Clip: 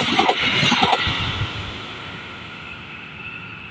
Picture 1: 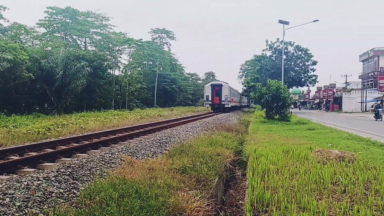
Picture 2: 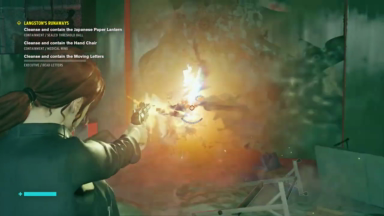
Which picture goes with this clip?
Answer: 1